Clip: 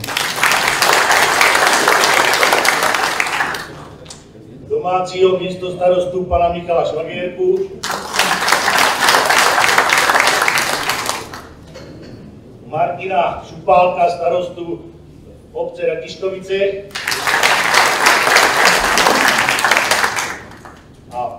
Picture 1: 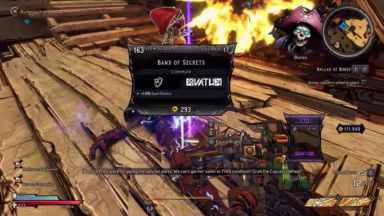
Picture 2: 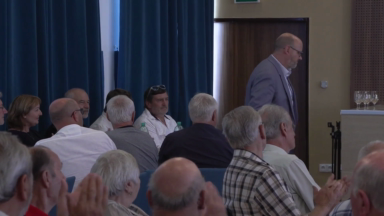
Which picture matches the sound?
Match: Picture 2